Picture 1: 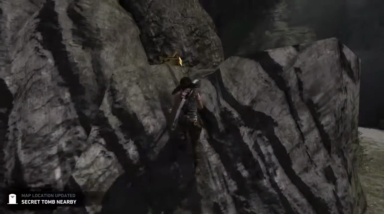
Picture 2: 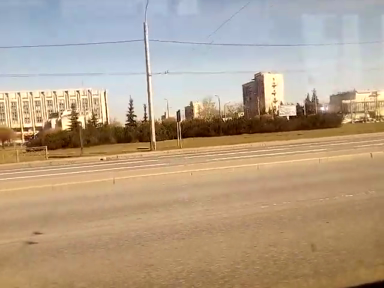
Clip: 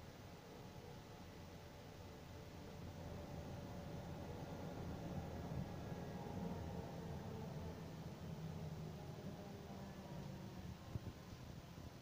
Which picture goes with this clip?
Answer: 2